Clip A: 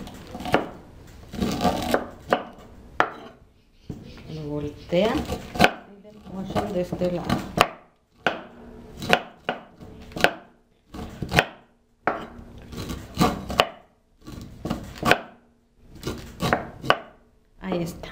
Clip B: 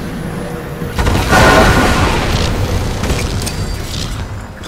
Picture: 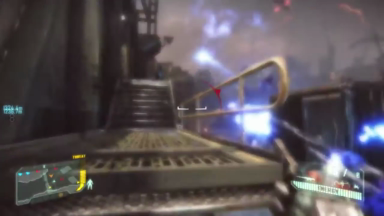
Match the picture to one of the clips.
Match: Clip B